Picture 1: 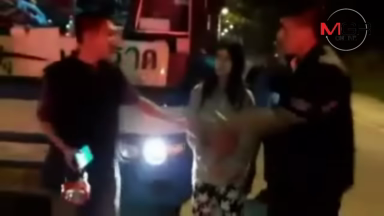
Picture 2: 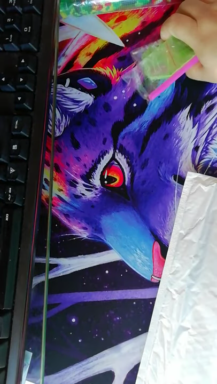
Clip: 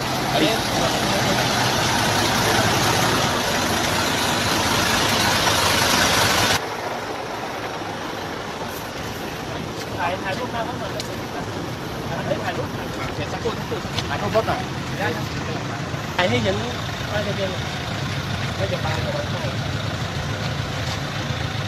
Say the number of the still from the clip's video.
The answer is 1